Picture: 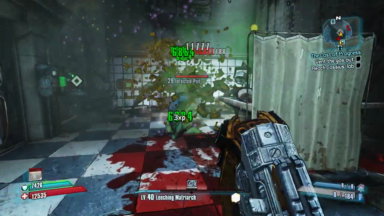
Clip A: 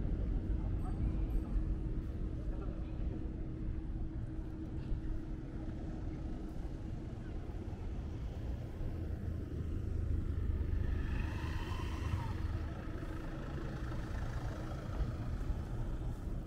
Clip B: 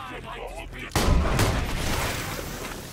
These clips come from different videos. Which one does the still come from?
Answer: B